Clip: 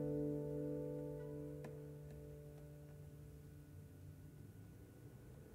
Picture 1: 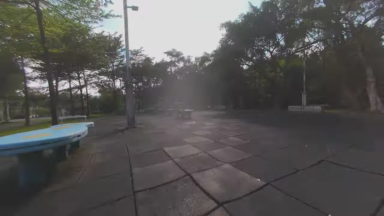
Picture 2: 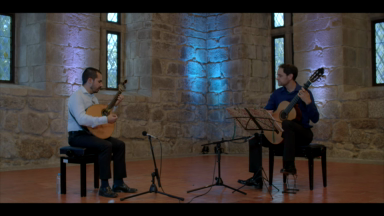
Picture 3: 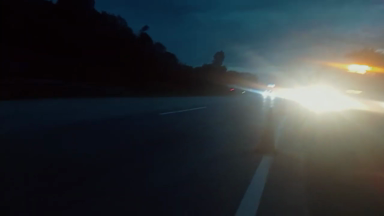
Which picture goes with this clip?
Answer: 2